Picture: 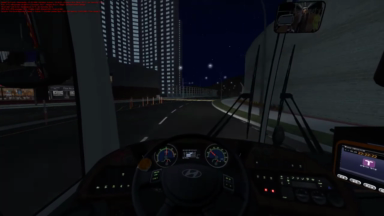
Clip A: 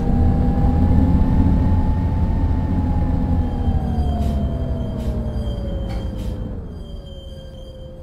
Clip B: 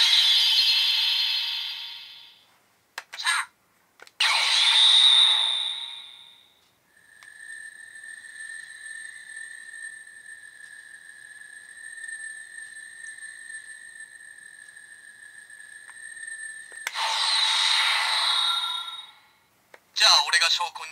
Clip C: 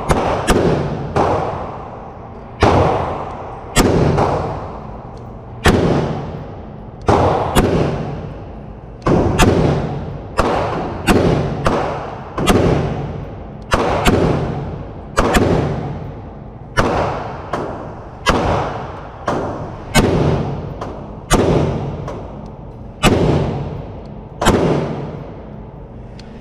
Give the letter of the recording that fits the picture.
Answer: A